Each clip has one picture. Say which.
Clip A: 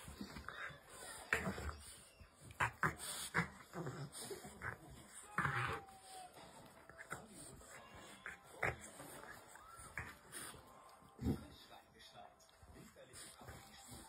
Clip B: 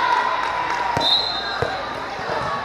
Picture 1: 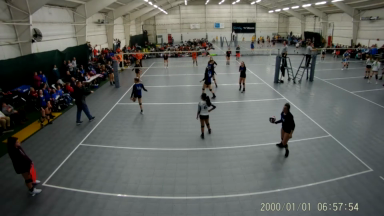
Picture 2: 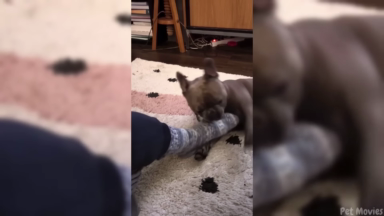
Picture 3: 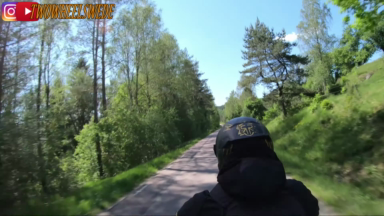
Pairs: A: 2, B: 1